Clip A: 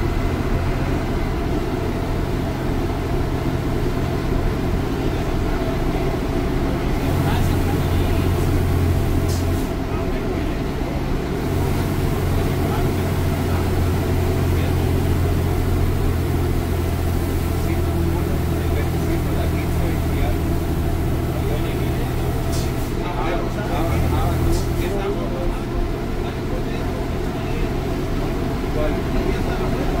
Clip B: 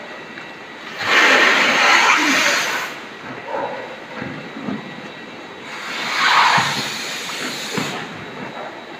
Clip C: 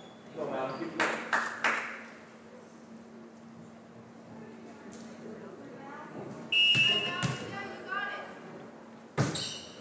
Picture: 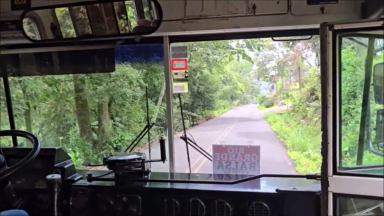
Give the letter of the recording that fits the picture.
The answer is A